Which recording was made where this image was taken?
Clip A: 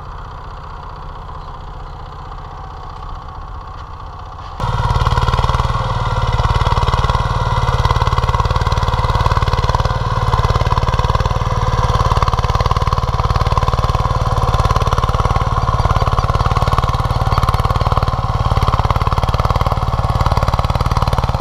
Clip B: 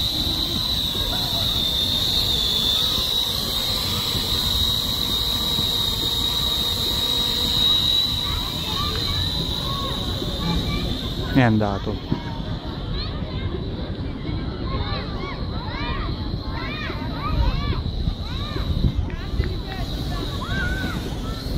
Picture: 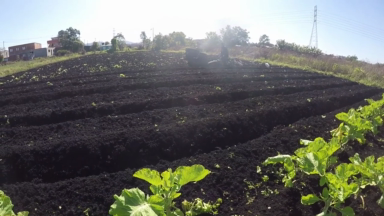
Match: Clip A